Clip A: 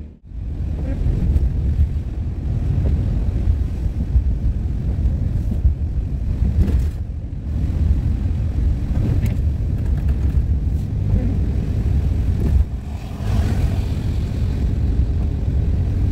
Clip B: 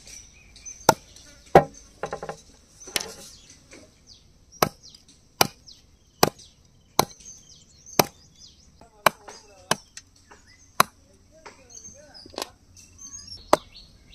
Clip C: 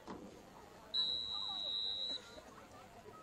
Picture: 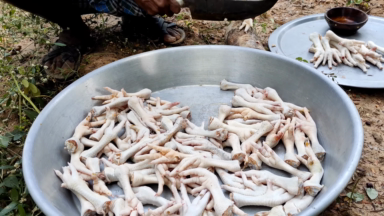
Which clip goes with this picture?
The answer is B